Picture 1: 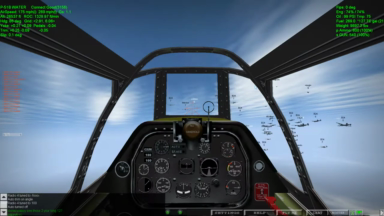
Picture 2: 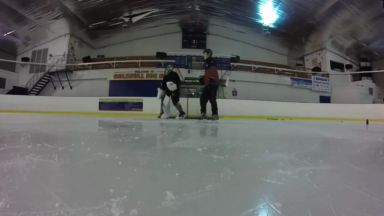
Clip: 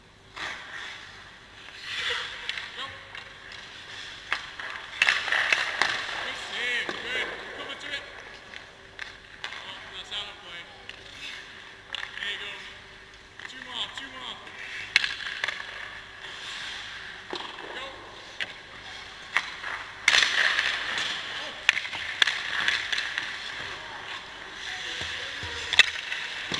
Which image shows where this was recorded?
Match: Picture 2